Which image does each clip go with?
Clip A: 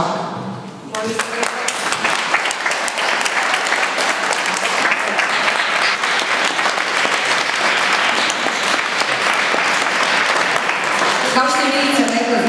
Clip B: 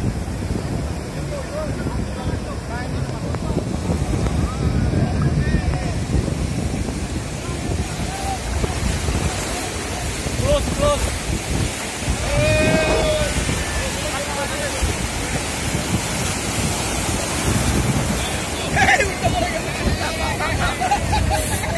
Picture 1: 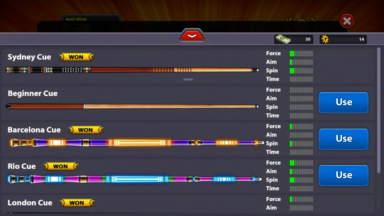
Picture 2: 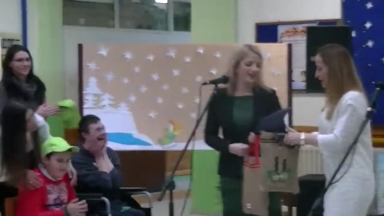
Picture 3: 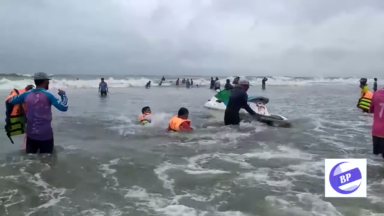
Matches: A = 2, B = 3